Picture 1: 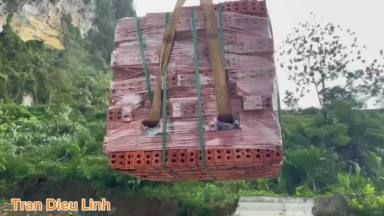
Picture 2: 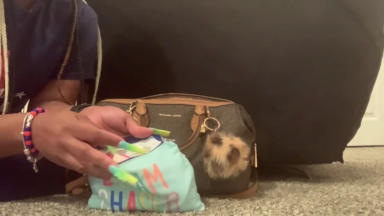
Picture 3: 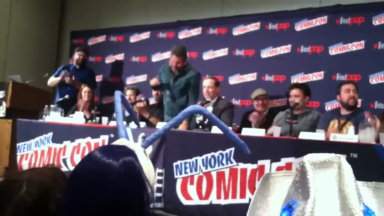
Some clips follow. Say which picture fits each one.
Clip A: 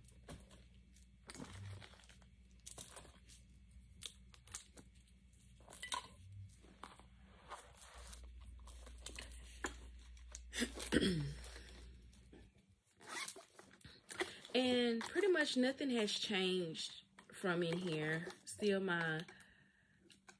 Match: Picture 2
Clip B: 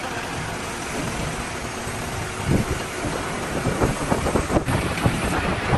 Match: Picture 1